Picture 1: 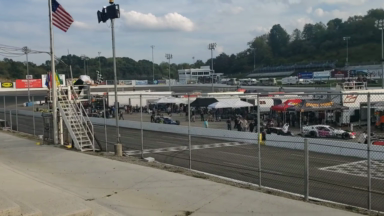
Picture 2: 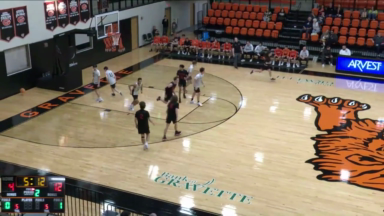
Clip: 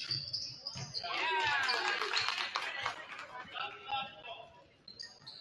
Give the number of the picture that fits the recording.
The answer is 2